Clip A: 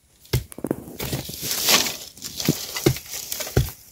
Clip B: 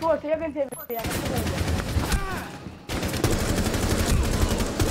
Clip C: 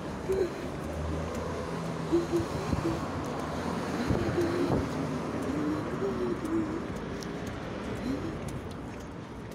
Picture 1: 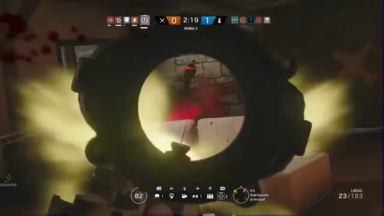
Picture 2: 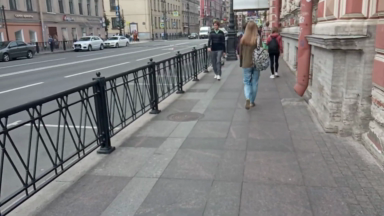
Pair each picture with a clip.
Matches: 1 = B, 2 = C